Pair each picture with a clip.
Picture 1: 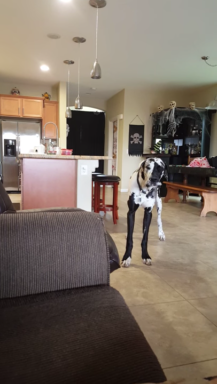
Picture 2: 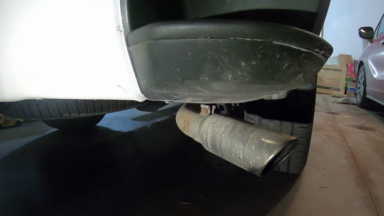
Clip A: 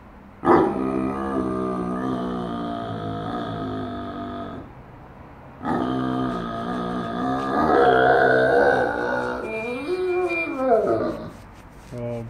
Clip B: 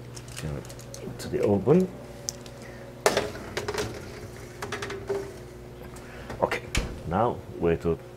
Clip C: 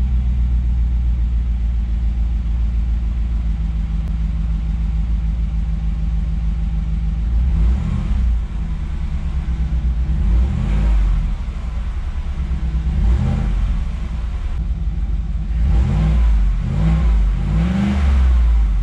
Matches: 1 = A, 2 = C